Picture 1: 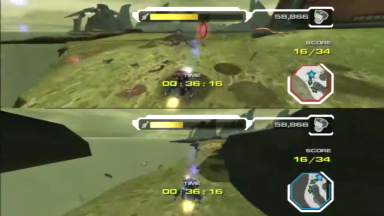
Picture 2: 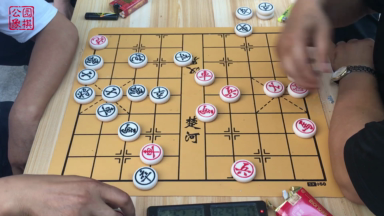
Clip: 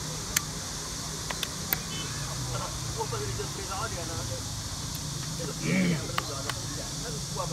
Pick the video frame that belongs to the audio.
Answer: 2